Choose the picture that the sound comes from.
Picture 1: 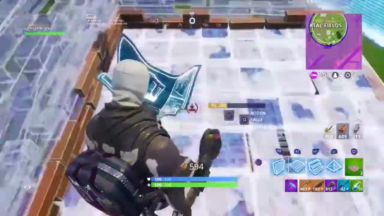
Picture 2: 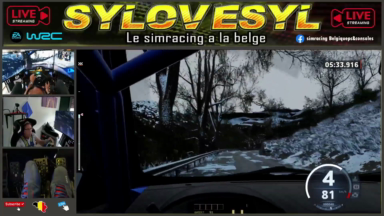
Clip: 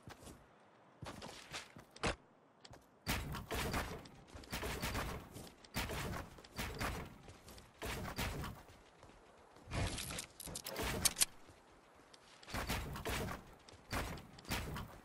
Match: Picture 1